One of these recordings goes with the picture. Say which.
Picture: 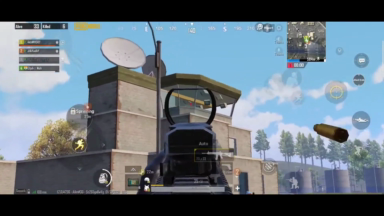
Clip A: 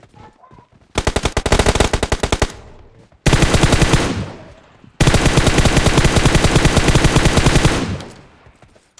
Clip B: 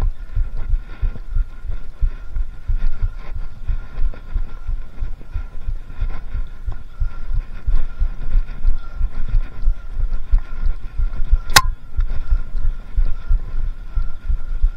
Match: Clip A